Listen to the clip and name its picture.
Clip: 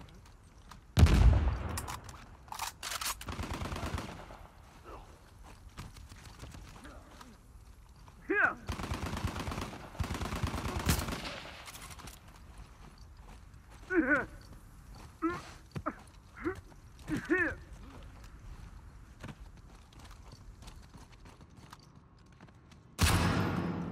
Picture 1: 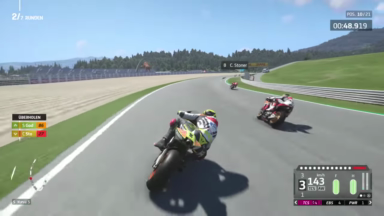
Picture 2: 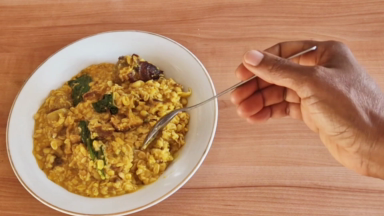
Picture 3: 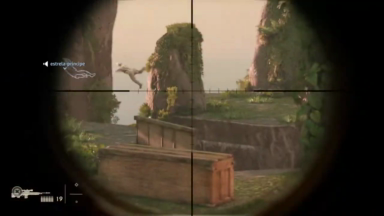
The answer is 3